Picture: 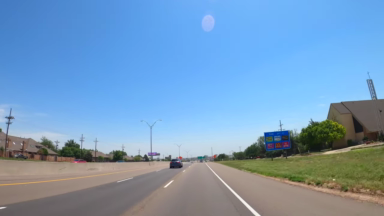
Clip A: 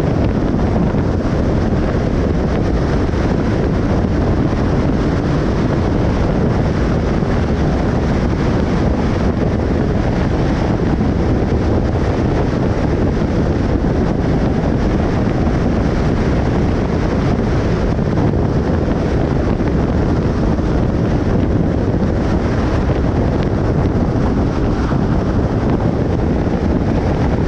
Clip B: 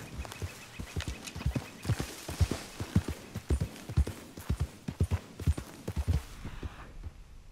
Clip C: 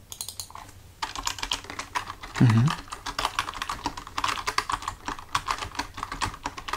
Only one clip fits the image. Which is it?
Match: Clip A